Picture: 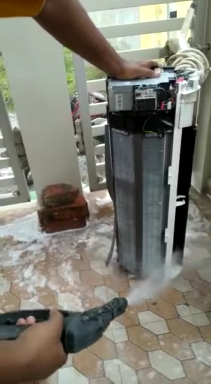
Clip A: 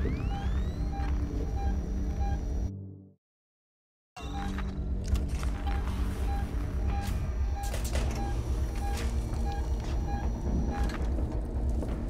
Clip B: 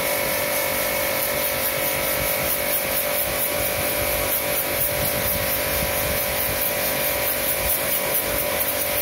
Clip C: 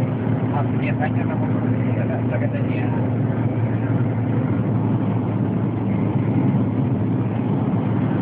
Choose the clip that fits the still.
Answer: B